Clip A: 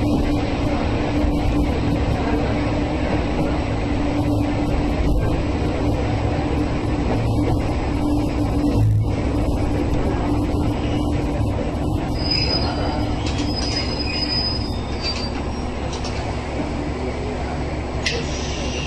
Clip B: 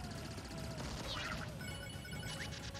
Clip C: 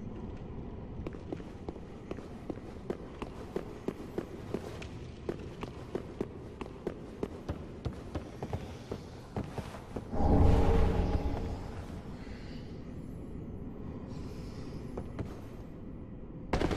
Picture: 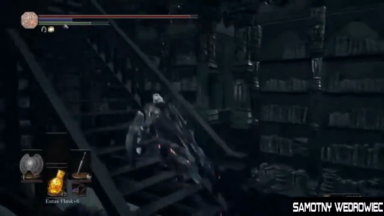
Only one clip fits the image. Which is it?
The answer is C